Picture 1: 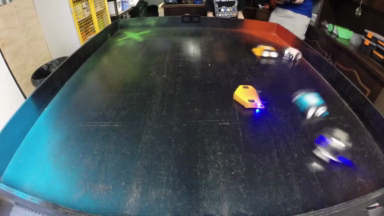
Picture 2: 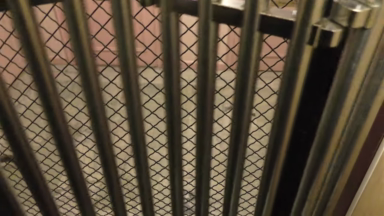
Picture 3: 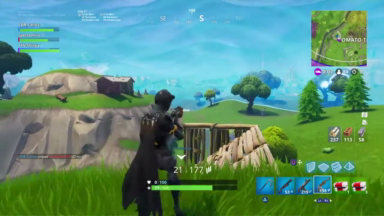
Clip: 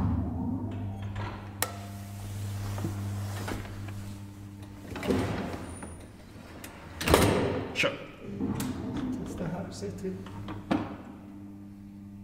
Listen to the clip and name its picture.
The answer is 2